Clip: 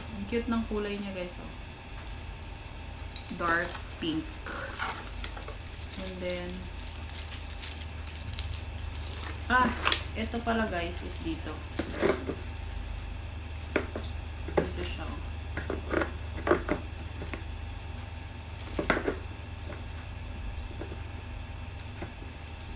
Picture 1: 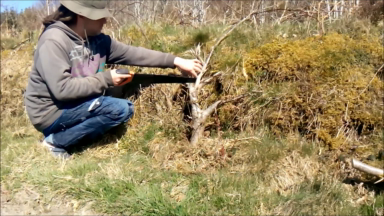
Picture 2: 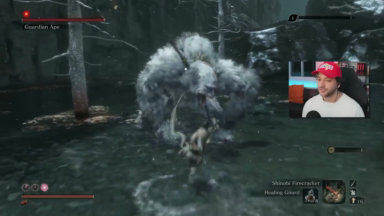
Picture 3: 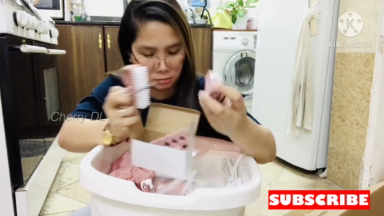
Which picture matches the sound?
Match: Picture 3